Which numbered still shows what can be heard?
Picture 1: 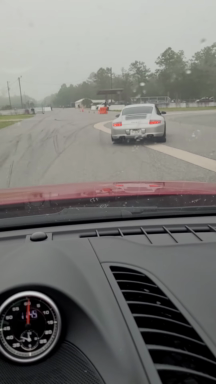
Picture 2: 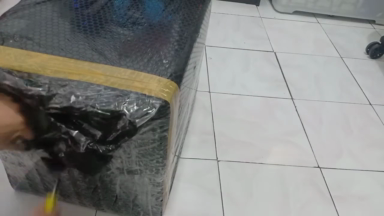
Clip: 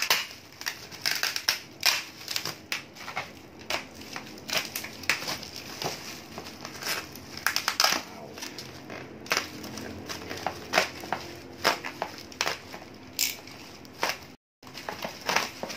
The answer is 2